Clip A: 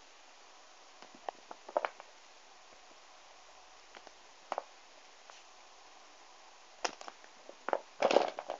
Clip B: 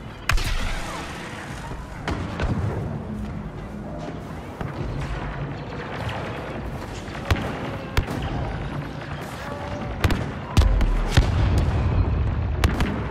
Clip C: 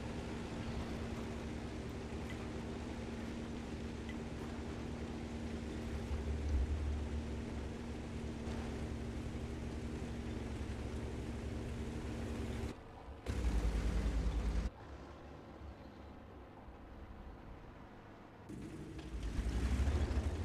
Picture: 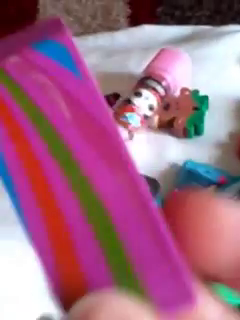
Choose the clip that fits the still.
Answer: A